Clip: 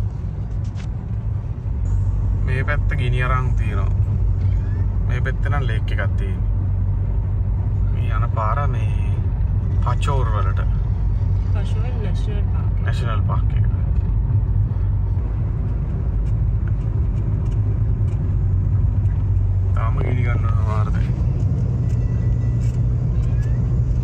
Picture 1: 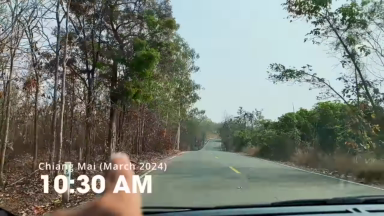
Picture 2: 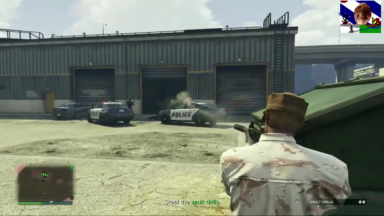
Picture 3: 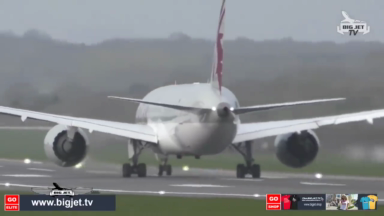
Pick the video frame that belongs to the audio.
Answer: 1